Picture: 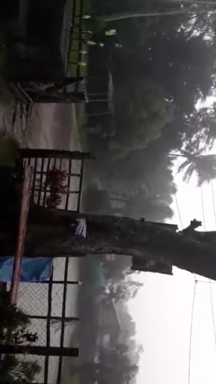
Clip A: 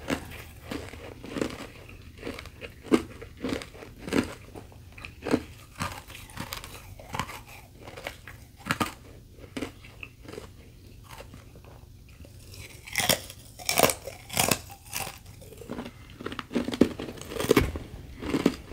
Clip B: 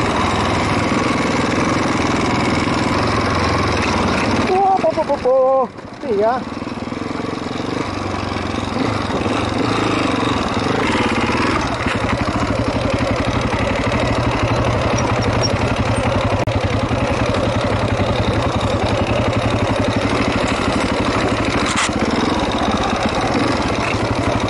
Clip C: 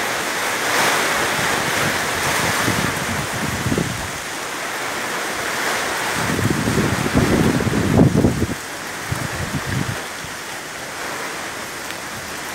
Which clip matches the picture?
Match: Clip C